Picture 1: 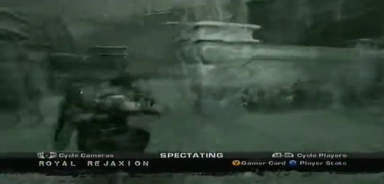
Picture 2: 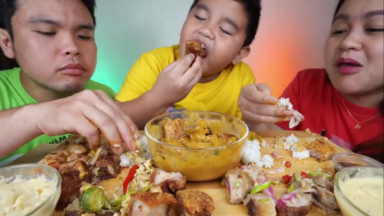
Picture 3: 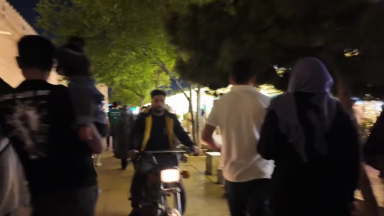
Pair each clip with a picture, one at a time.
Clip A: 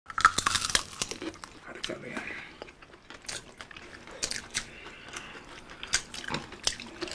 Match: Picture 2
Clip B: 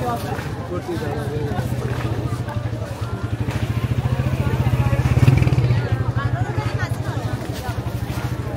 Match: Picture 3